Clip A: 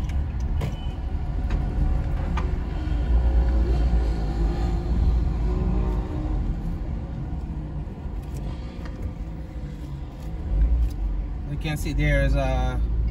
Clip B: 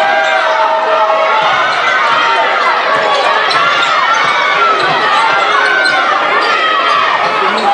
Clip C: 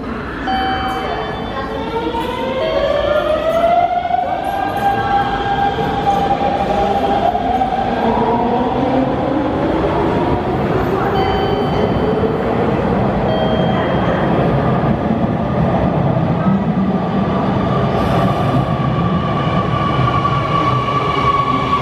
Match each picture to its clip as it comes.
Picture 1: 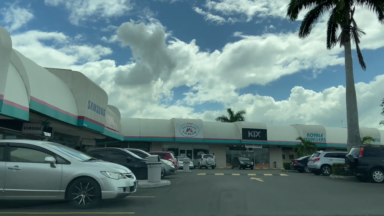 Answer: A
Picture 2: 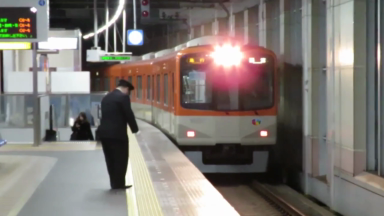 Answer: C